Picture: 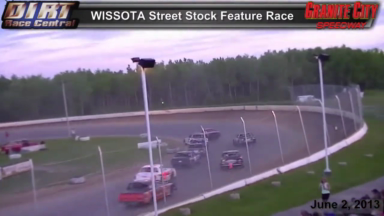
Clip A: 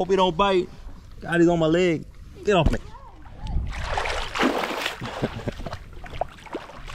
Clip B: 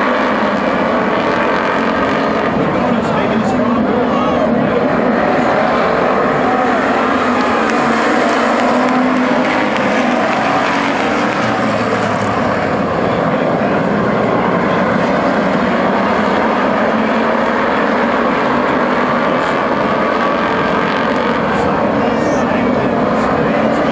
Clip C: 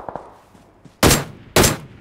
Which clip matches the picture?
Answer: B